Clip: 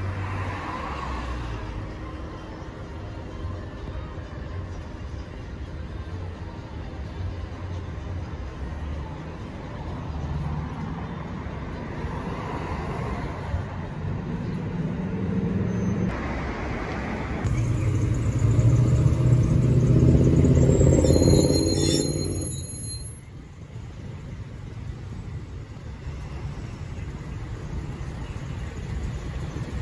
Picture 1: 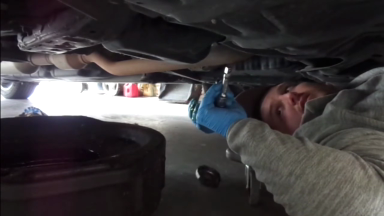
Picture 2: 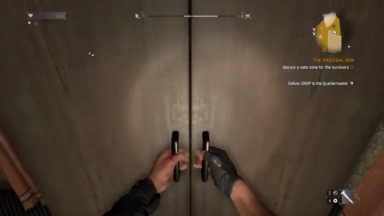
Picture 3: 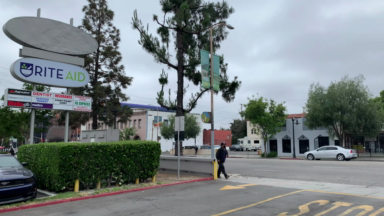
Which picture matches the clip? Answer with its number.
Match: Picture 3